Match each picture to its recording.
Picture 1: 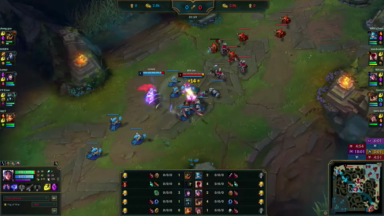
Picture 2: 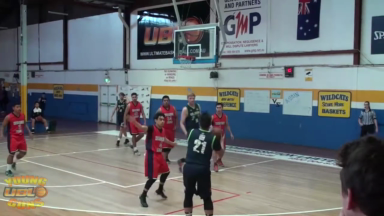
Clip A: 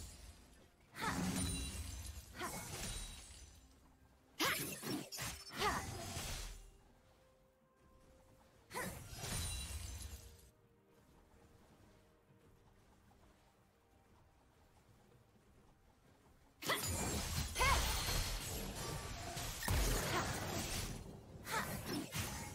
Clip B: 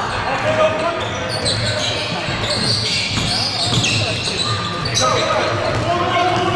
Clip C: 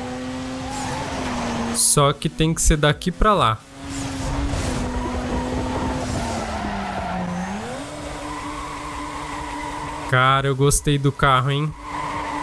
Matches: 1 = A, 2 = B